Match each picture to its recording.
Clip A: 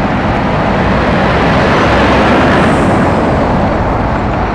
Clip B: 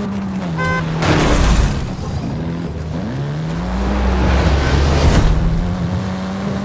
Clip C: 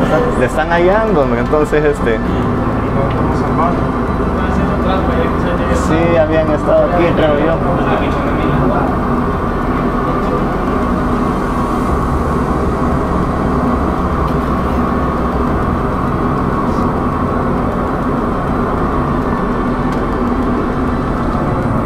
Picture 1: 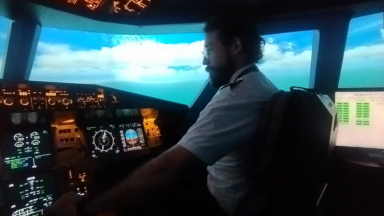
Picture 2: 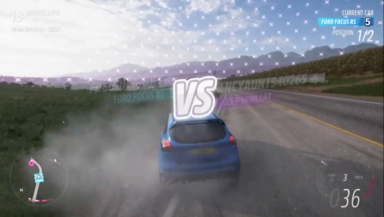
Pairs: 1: C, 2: B